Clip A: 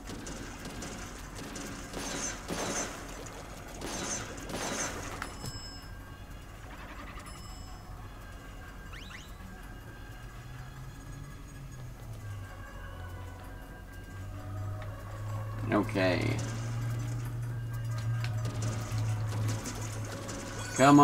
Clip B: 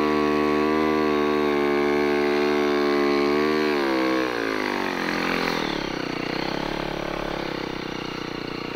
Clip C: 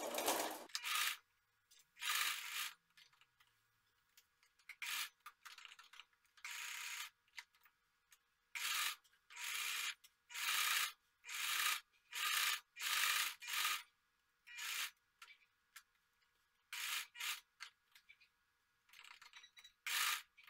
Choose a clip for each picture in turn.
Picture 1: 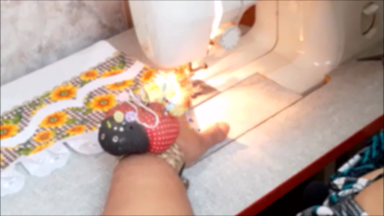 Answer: C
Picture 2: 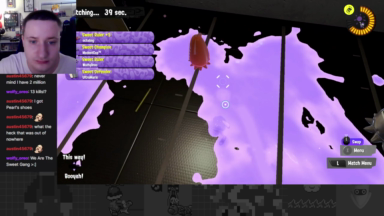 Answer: A